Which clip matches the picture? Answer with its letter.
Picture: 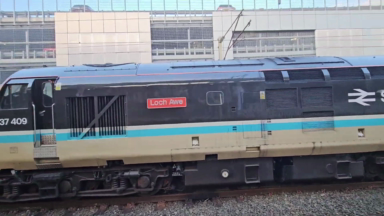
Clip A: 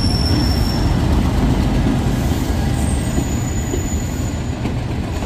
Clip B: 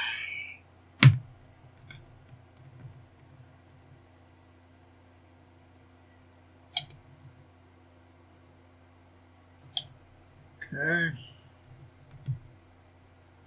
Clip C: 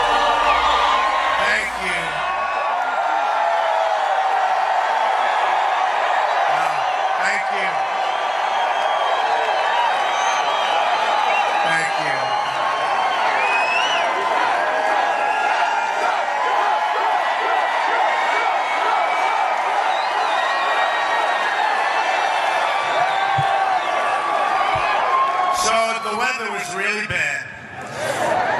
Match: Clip A